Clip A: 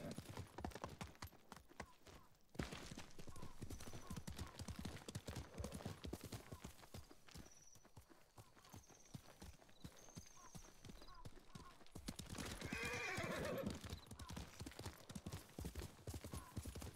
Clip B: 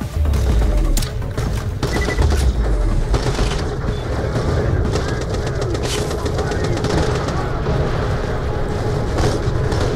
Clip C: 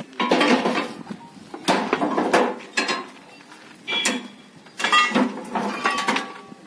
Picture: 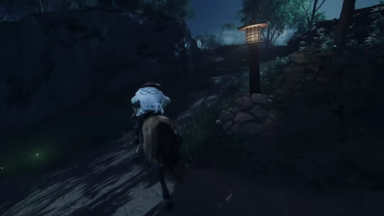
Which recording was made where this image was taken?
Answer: A